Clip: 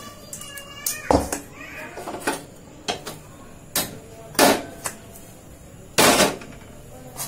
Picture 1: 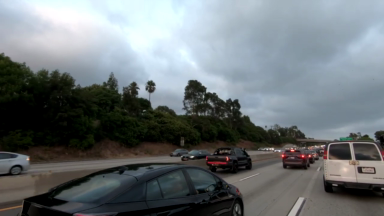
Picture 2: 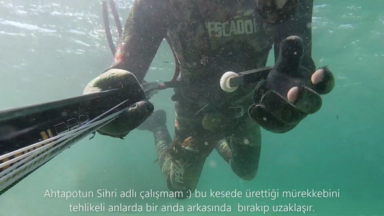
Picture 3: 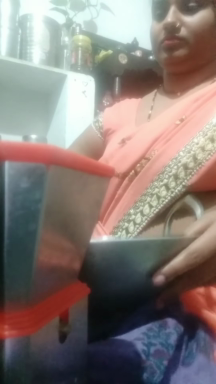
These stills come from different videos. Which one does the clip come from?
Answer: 3